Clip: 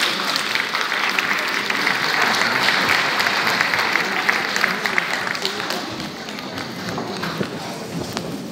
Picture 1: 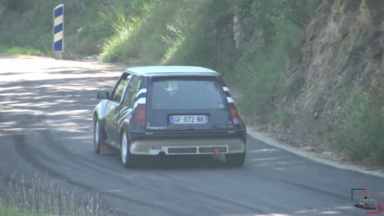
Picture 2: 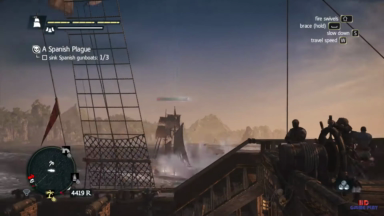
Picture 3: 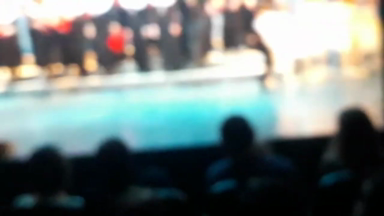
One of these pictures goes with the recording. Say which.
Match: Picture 3